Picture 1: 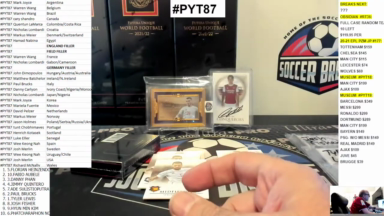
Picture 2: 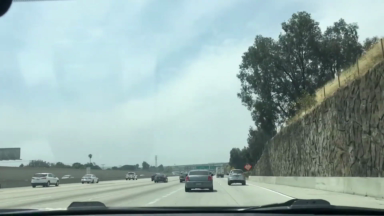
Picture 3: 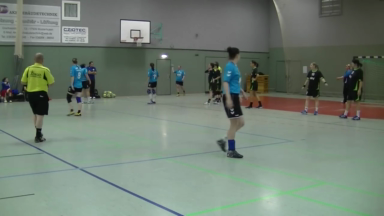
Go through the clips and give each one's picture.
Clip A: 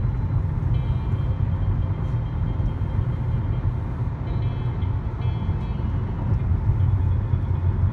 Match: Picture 2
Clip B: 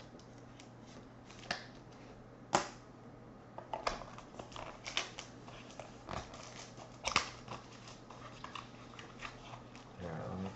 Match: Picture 1